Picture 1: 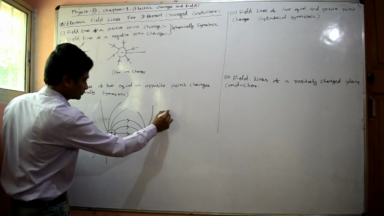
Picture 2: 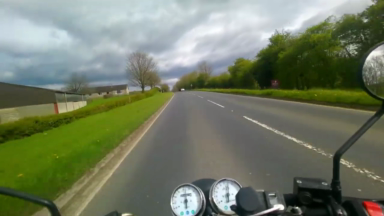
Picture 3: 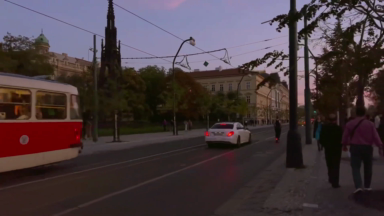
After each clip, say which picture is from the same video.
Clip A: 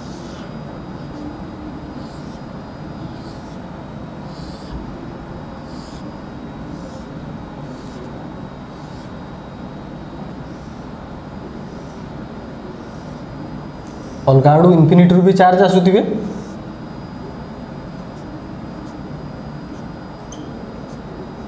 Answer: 1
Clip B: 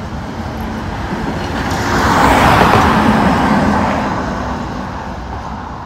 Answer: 3